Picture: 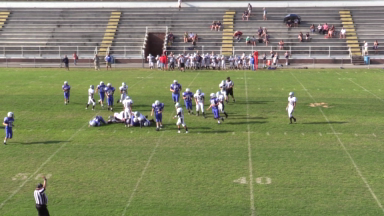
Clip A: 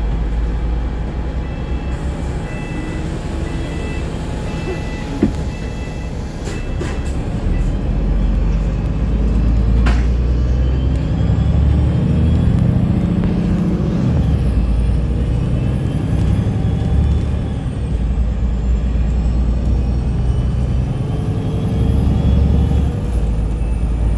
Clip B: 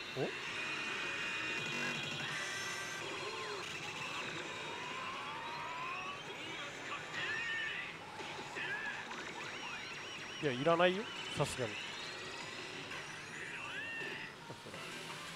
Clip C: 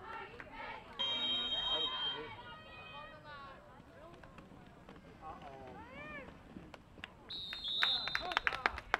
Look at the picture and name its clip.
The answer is C